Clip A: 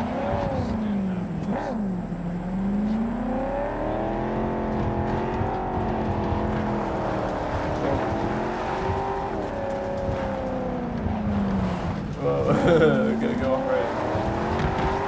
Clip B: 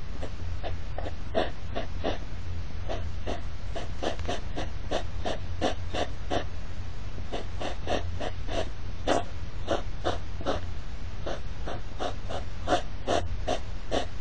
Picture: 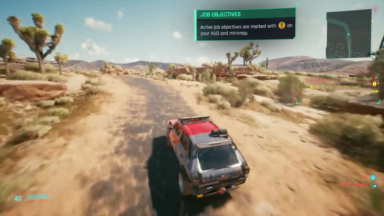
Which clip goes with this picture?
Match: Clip A